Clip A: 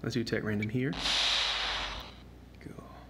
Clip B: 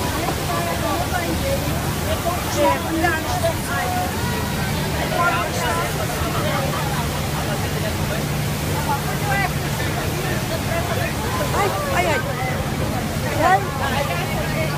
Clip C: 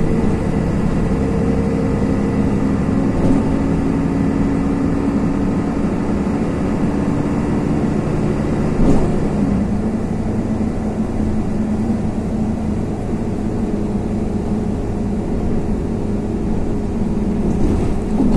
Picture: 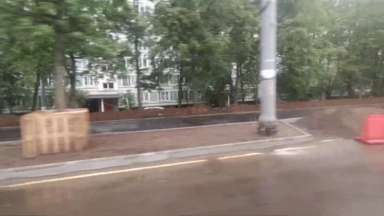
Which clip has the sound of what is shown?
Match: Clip C